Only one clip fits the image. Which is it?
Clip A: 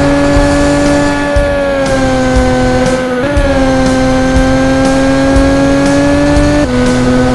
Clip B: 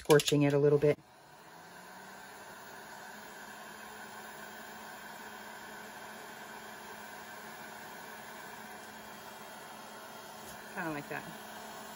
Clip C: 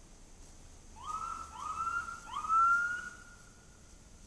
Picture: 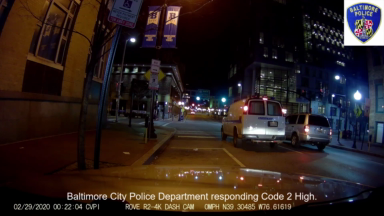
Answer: C